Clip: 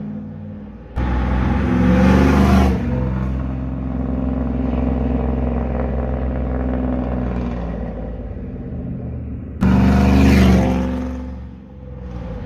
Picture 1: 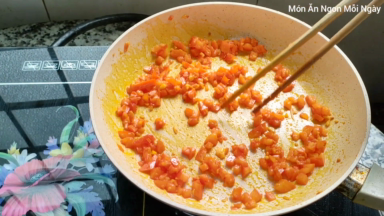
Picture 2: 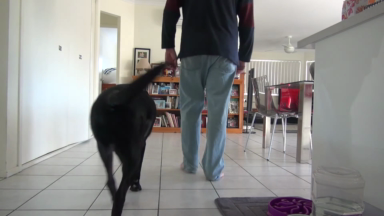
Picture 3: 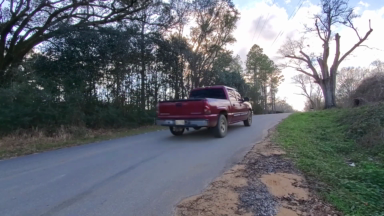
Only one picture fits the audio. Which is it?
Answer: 3